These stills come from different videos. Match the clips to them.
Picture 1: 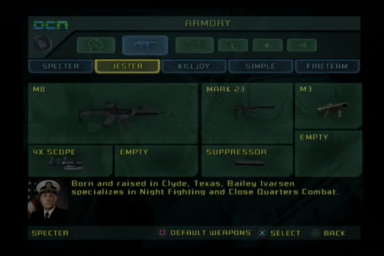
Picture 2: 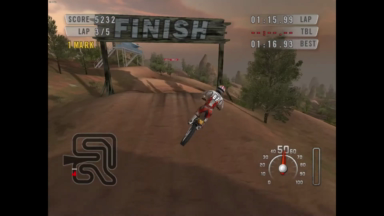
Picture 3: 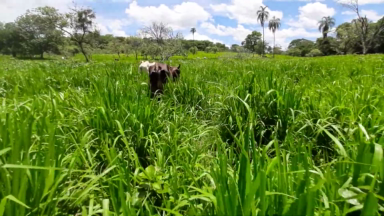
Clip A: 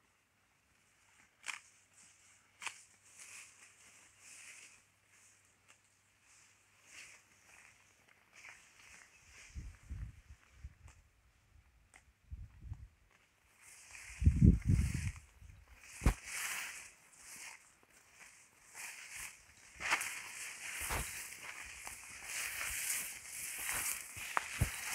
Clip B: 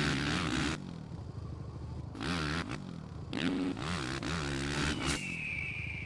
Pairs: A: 3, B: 2